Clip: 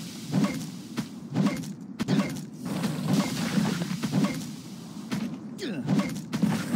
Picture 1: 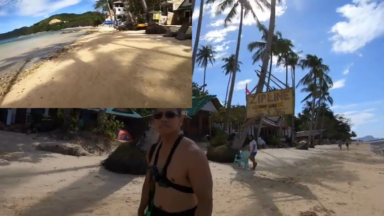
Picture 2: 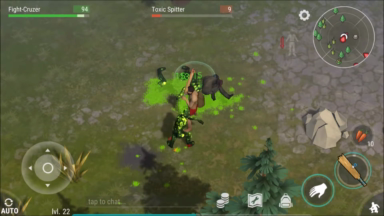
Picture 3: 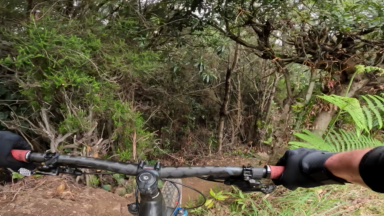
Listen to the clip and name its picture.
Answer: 2